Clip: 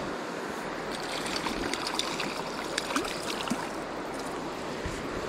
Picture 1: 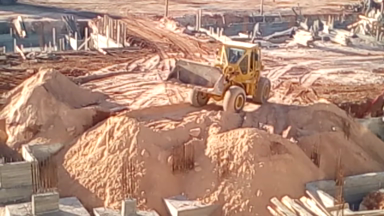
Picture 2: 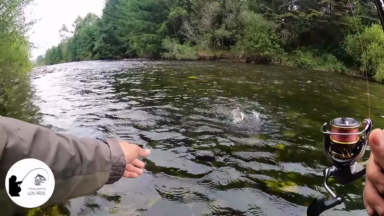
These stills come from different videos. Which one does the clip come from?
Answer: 2